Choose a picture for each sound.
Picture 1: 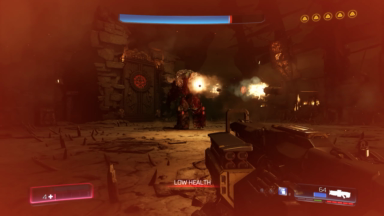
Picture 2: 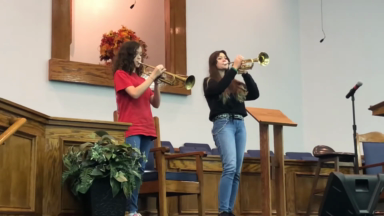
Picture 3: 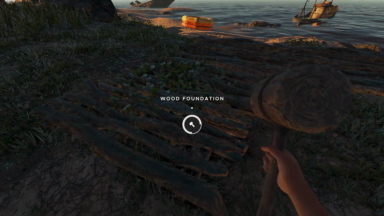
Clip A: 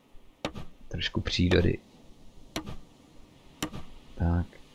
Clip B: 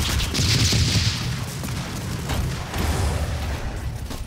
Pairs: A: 3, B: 1